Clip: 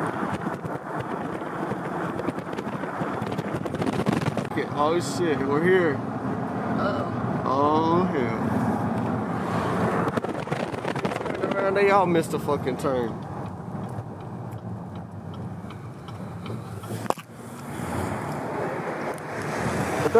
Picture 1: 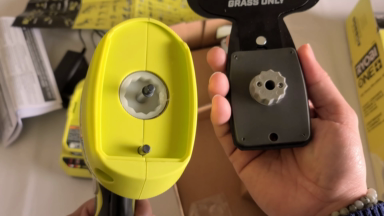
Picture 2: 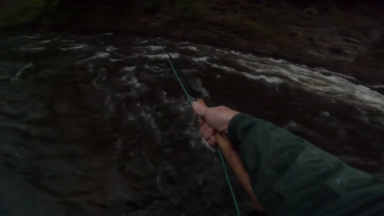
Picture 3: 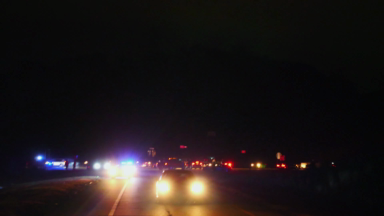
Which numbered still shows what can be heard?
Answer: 3